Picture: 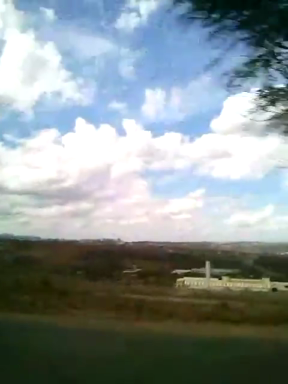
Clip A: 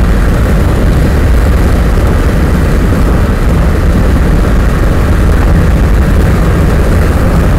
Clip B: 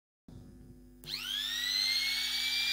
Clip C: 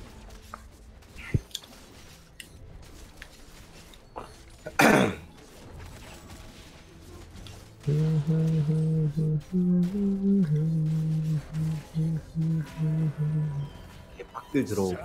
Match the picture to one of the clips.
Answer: A